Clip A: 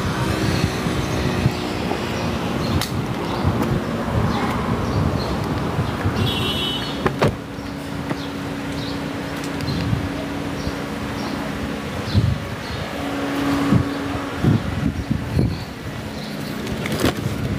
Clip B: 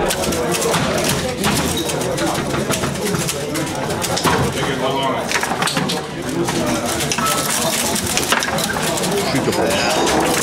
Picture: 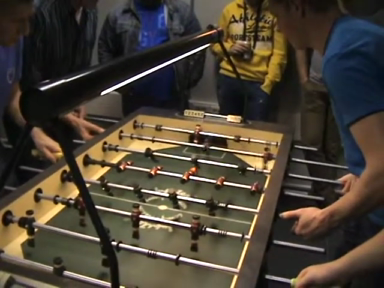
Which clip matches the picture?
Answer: B